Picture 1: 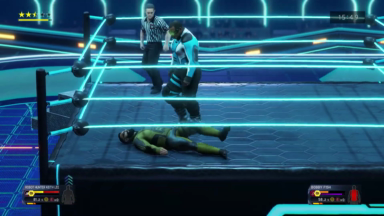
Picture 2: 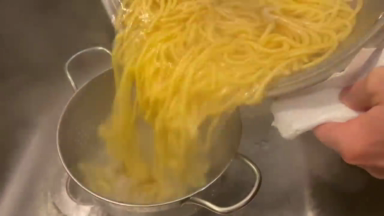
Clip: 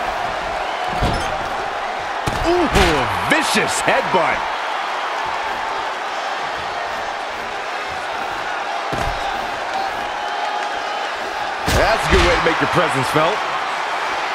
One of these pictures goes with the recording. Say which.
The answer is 1